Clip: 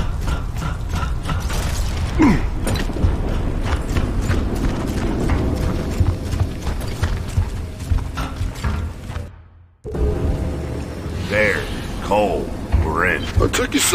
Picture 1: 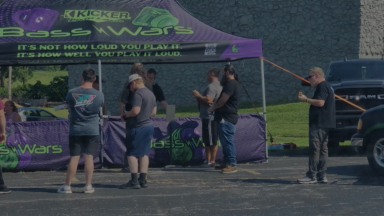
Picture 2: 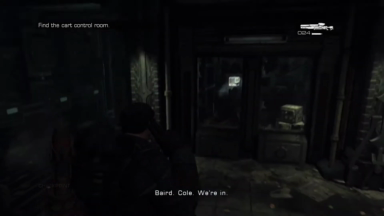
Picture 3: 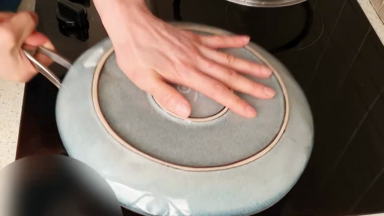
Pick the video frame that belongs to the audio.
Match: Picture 2